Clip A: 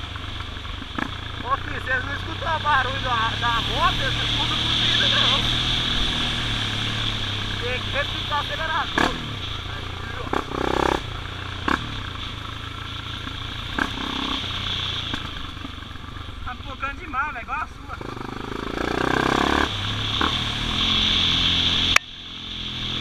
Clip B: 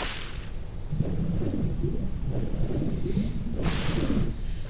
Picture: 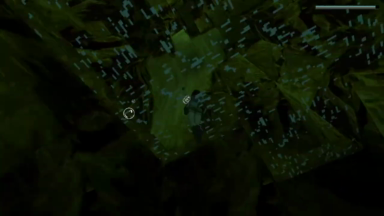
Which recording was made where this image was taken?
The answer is B